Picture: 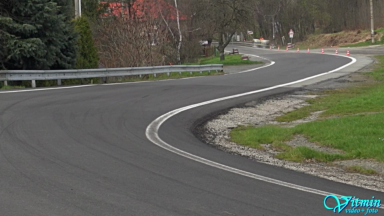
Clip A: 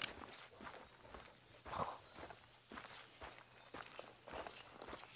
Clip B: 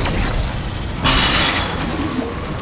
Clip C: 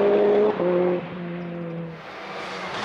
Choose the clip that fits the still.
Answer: C